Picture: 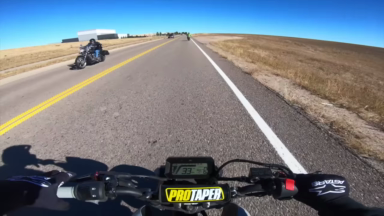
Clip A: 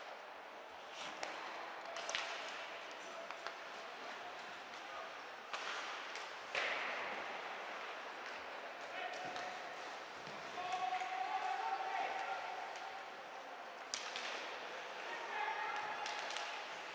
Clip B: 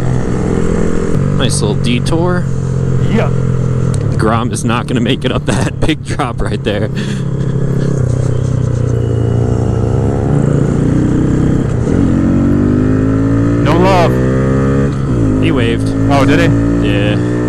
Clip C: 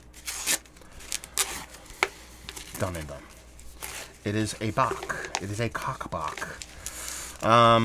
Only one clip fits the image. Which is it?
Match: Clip B